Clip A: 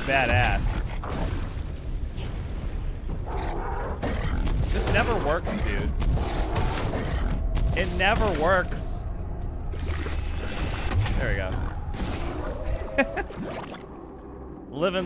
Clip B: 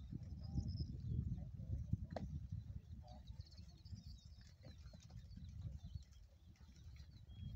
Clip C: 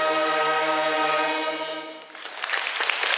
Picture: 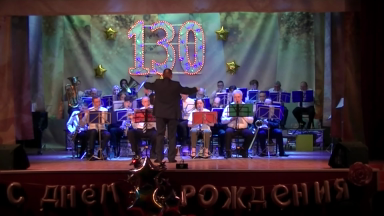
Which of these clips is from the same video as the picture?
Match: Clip C